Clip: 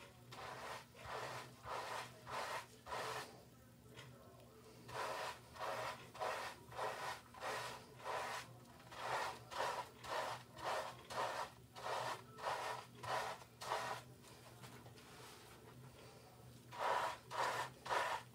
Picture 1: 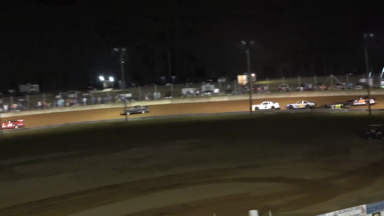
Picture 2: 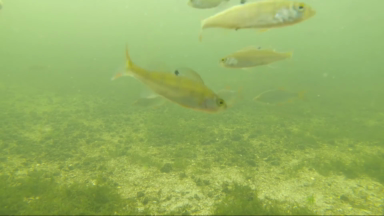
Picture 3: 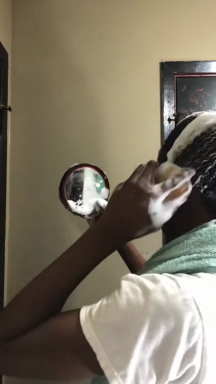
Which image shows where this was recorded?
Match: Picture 3